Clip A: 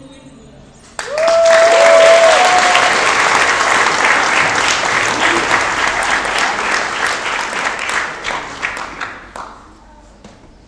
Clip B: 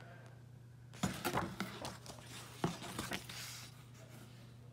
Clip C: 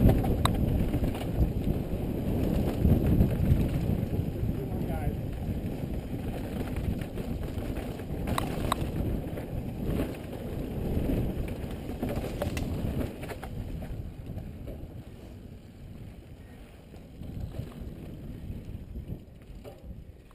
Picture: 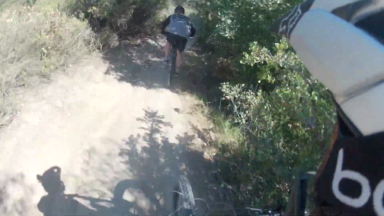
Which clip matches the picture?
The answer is C